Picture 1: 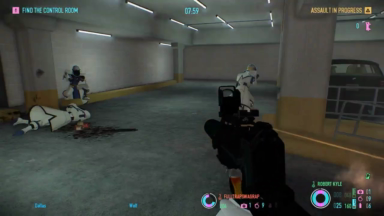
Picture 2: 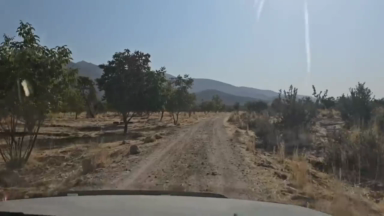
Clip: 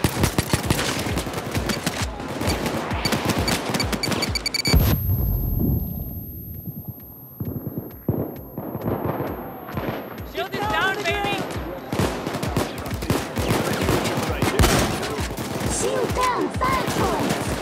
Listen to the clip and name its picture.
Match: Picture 1